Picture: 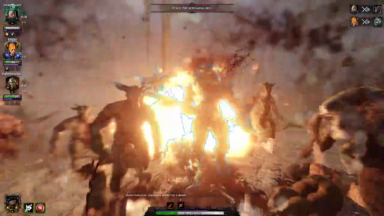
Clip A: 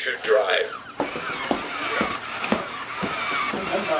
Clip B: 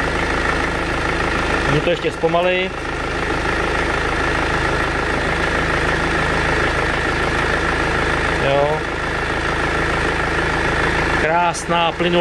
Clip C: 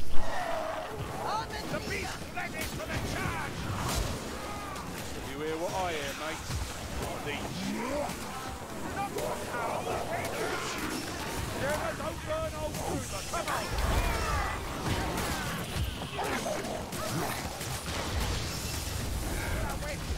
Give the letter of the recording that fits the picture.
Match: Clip C